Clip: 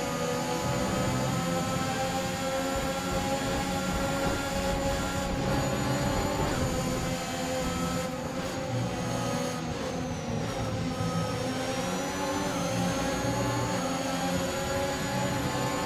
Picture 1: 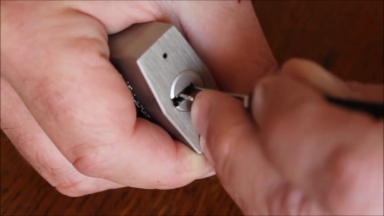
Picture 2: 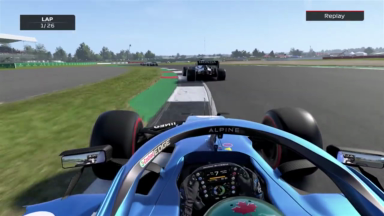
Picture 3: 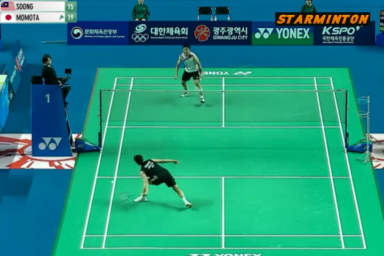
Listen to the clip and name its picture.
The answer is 2